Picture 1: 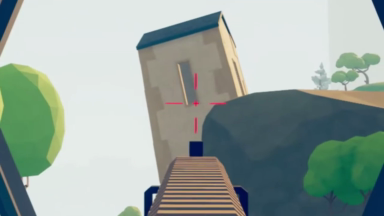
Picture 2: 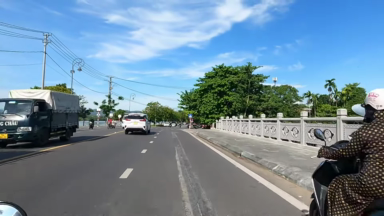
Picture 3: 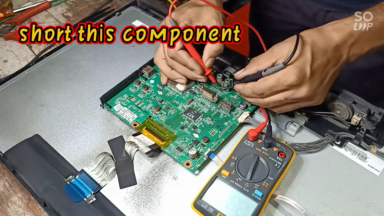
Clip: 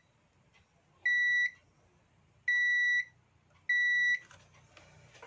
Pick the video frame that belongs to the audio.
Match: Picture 3